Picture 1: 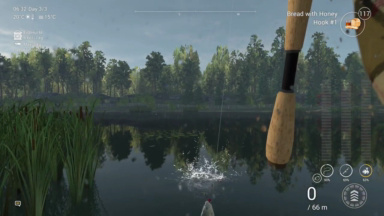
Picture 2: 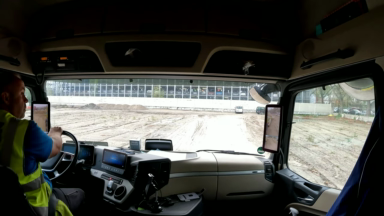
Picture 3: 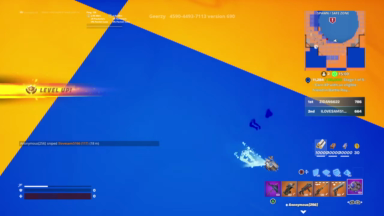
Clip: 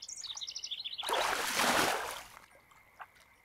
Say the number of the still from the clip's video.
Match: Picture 1